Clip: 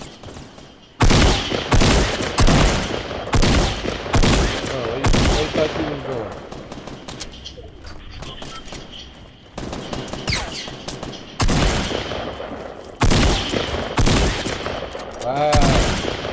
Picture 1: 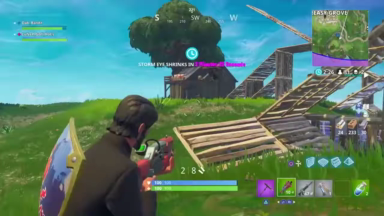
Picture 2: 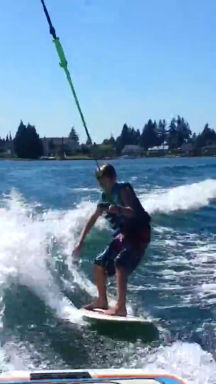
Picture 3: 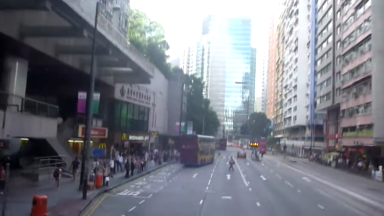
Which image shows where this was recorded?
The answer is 1